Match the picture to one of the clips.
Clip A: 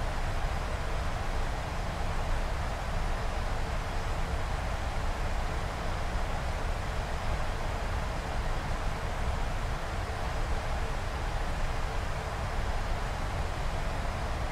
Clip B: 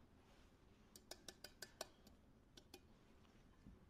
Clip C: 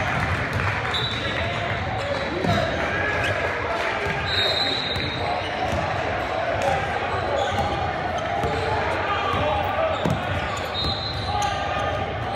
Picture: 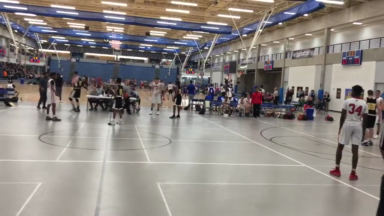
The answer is C